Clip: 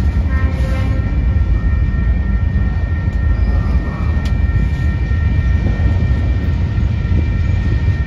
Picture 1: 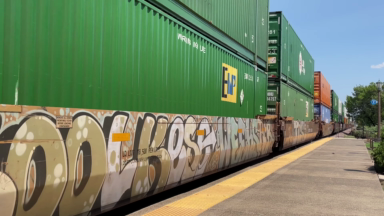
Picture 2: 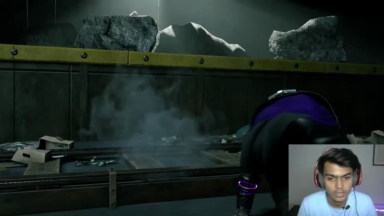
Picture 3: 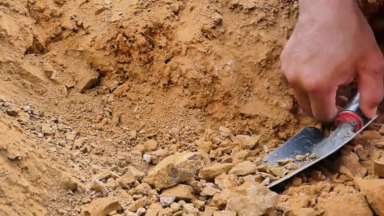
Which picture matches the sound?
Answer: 1